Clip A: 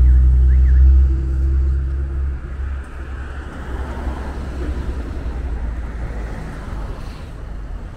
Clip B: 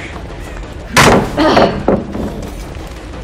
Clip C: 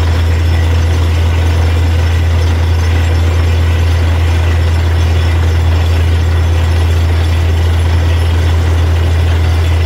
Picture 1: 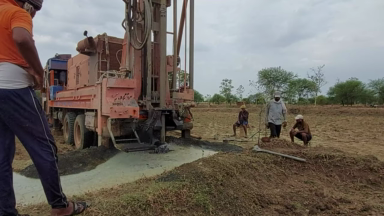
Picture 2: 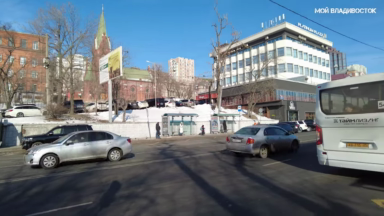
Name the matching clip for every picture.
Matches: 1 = C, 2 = A